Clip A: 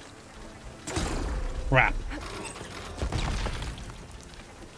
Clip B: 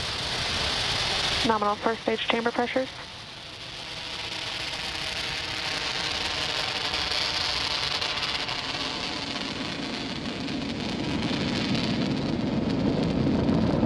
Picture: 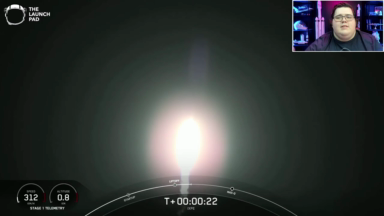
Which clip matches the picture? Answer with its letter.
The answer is B